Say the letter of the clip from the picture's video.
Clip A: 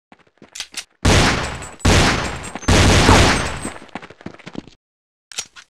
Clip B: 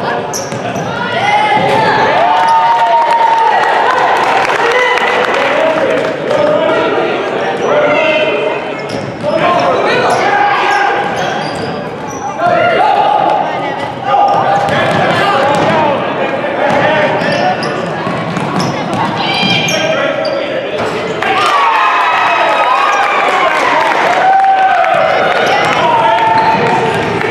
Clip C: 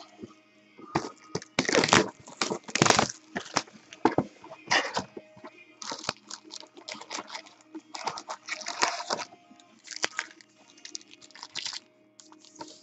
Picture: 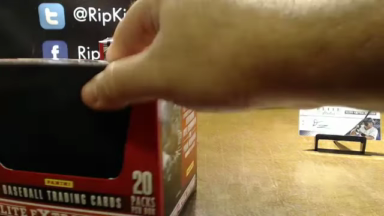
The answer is C